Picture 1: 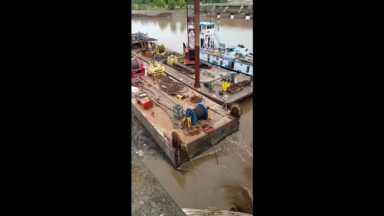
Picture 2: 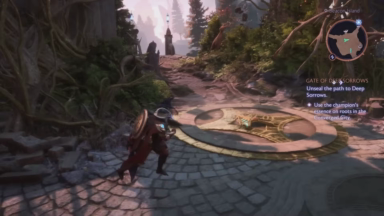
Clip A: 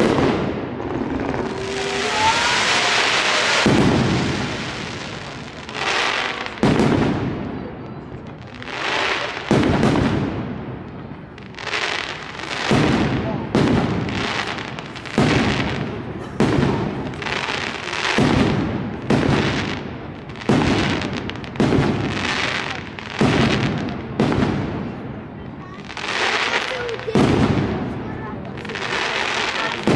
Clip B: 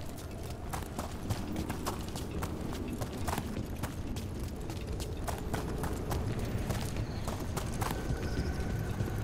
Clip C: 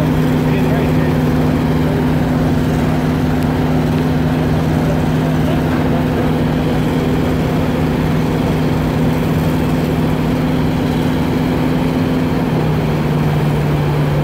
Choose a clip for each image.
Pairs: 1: C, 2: B